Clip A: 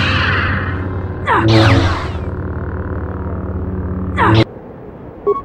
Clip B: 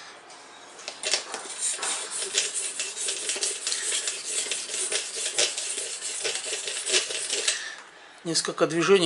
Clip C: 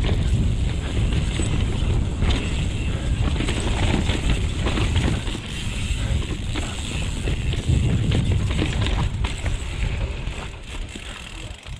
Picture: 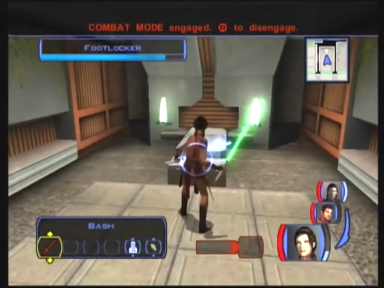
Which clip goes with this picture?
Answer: A